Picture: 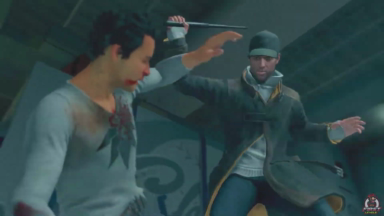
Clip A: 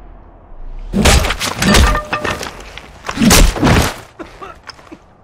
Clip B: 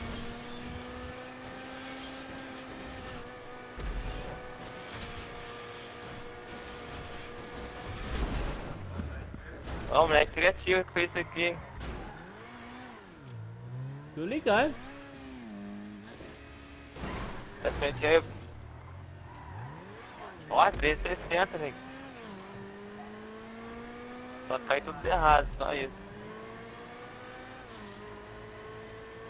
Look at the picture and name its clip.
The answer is A